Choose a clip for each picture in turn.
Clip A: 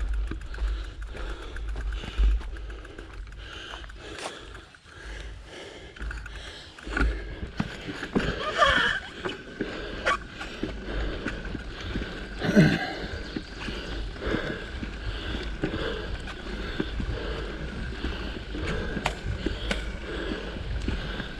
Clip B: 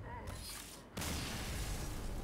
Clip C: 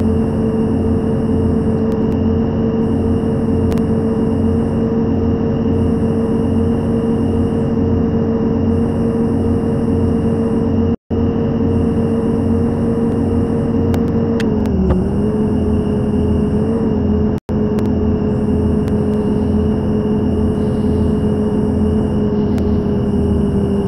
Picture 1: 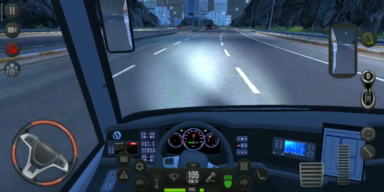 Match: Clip C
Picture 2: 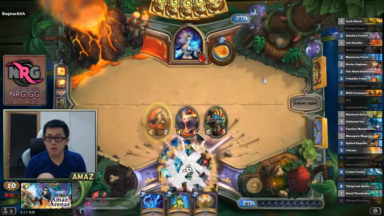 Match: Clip B